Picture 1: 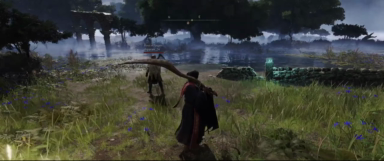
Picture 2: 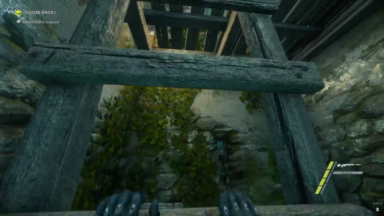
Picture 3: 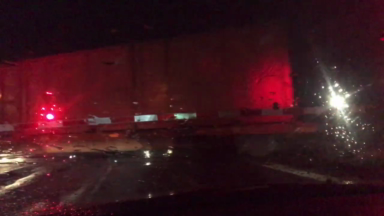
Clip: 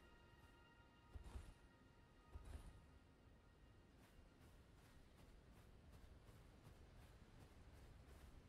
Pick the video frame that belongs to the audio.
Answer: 1